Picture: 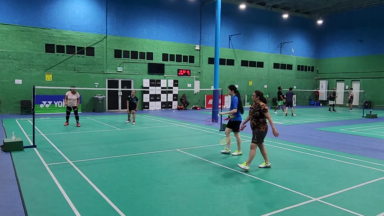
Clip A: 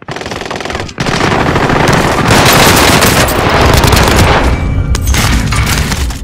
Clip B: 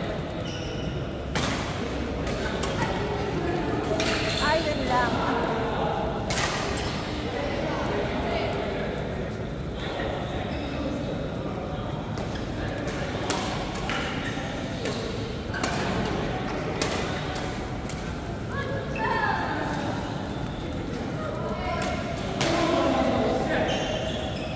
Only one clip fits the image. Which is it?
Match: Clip B